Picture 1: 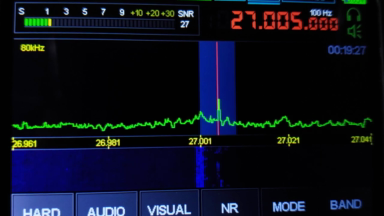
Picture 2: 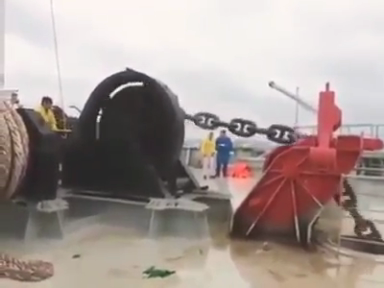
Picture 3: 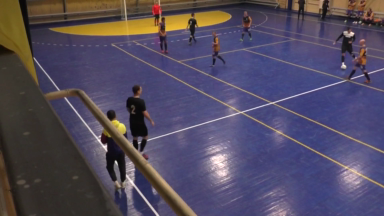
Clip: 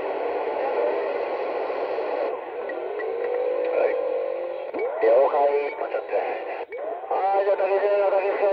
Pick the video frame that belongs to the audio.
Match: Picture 1